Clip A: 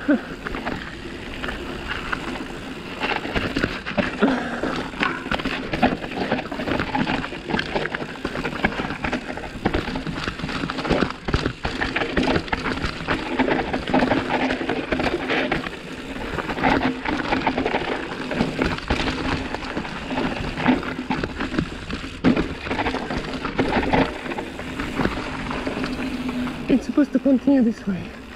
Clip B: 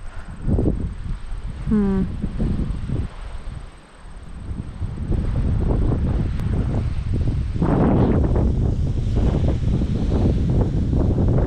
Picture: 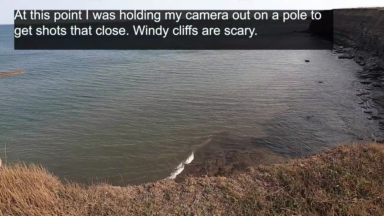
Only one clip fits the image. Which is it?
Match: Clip B